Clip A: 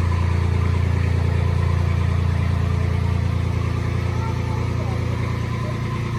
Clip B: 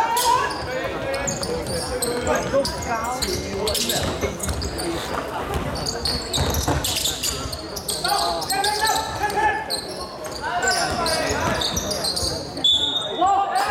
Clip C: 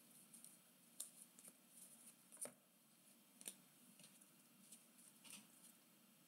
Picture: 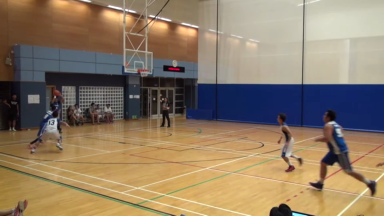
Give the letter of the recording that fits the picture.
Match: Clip B